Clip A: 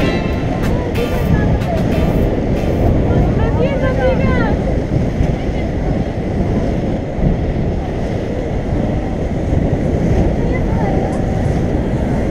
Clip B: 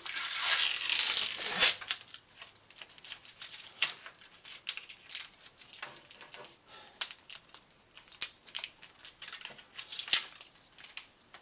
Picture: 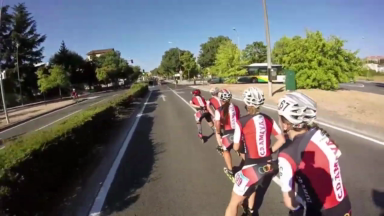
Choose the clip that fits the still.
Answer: A